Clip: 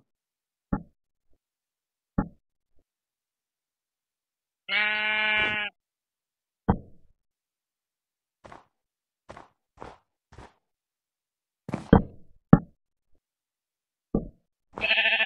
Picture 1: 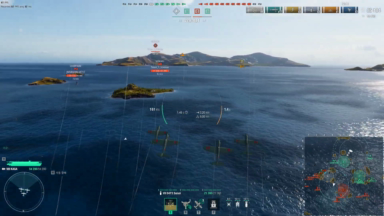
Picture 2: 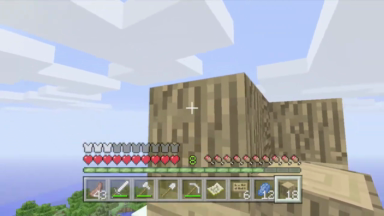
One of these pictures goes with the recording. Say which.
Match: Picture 2